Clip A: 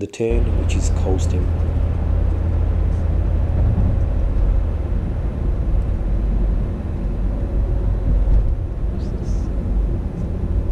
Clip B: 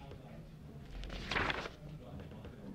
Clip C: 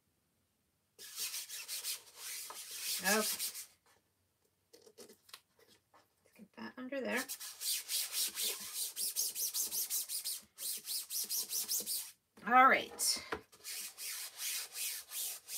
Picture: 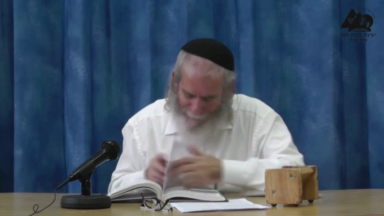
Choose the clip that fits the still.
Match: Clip B